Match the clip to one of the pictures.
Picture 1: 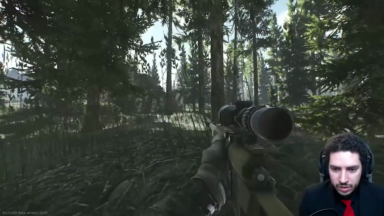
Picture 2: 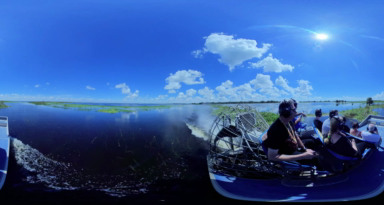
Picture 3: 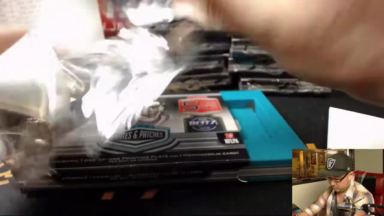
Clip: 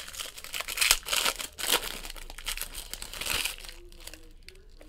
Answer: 3